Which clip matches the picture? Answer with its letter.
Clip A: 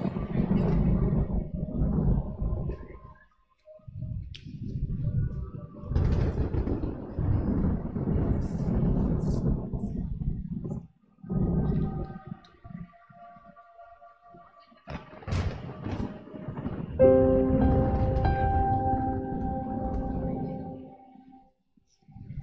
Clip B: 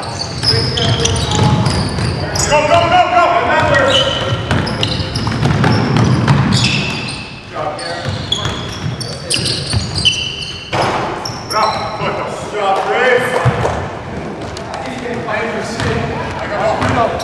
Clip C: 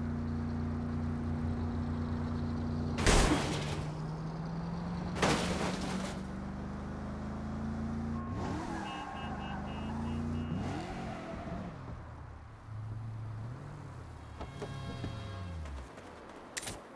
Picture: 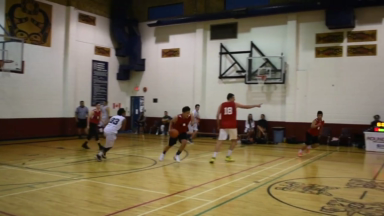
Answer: B